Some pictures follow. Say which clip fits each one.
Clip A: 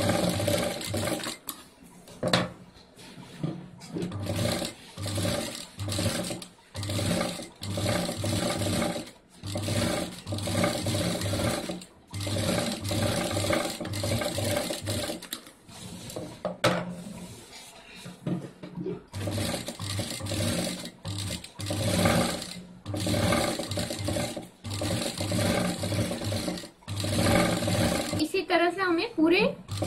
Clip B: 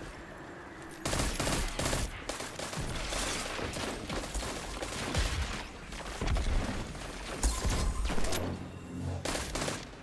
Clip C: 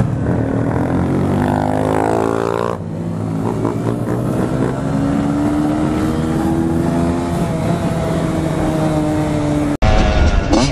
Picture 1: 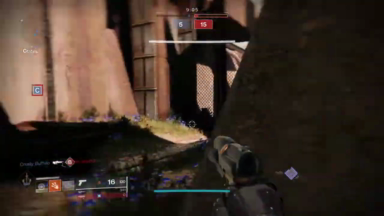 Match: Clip B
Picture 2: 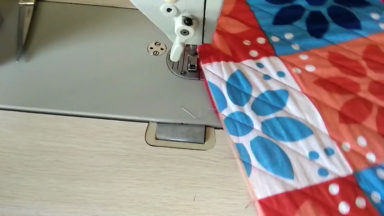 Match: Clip A